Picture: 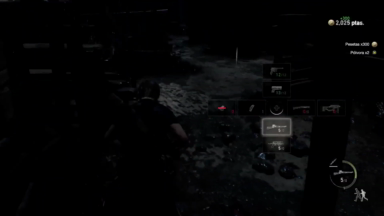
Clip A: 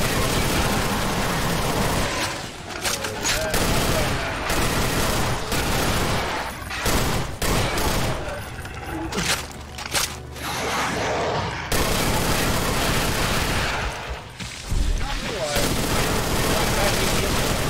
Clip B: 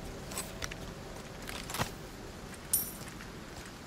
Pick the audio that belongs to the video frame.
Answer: B